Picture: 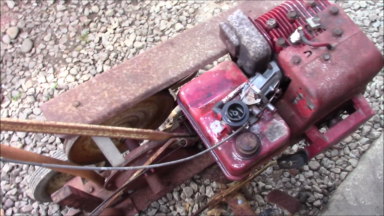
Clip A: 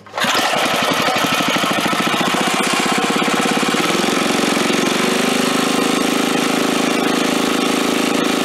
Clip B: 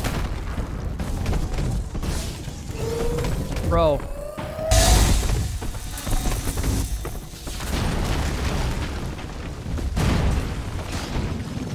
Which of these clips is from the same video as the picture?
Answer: A